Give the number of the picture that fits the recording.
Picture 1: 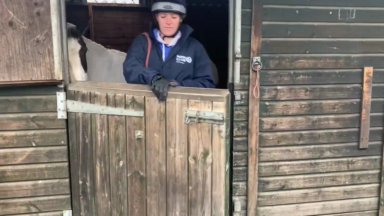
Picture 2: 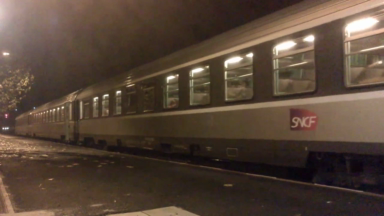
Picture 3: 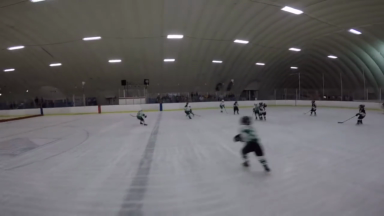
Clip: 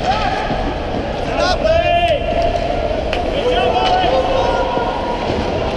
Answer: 3